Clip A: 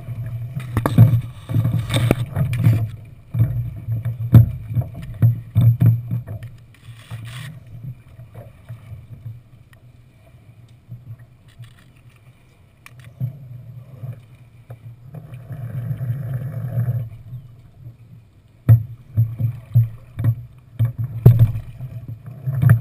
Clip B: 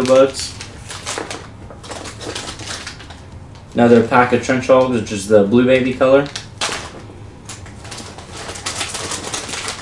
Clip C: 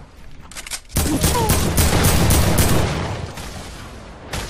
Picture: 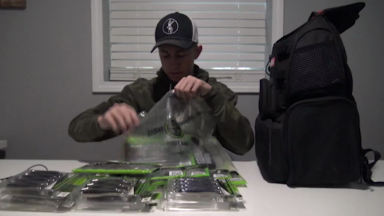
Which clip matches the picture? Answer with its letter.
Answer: B